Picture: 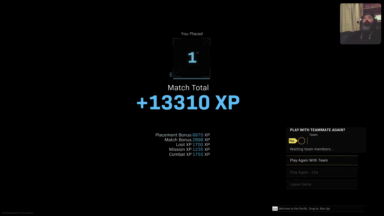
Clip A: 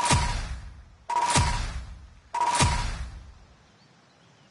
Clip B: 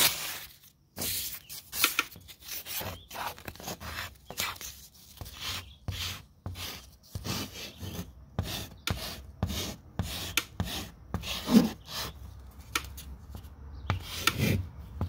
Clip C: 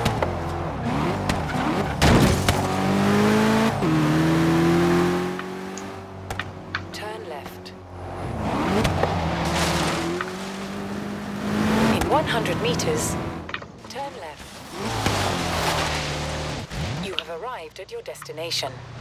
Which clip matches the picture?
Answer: A